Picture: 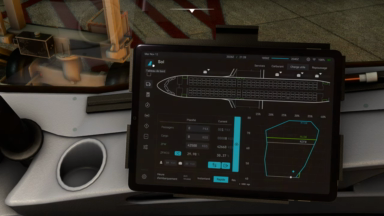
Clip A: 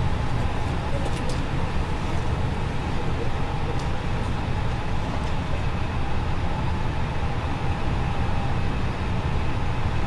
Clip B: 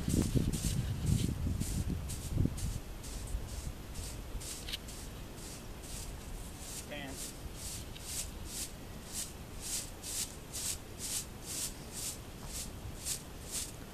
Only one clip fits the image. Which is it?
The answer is A